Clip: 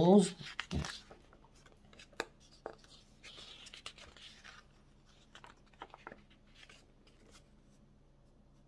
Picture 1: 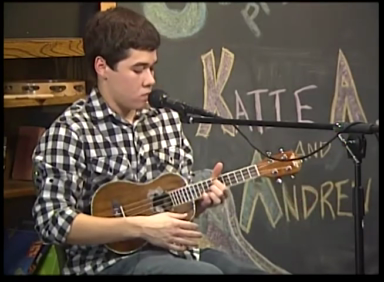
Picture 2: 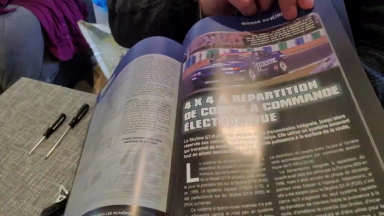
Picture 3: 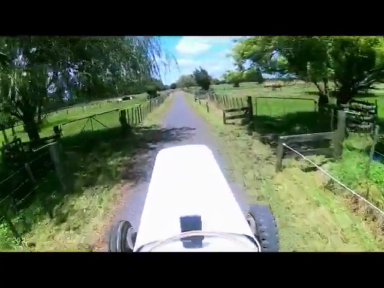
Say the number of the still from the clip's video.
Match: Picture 2